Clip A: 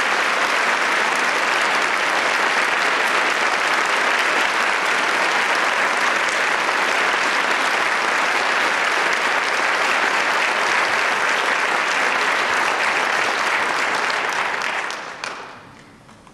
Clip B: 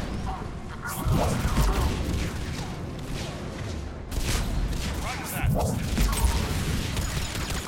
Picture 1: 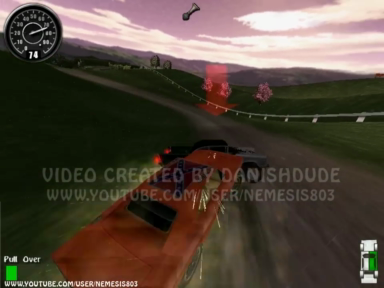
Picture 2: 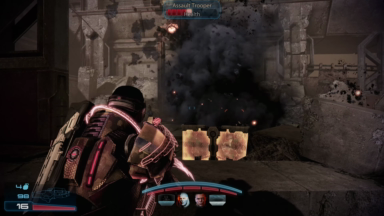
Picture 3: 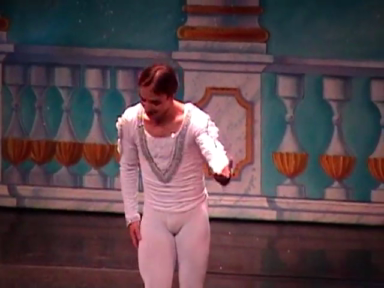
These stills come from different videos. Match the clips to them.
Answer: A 3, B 2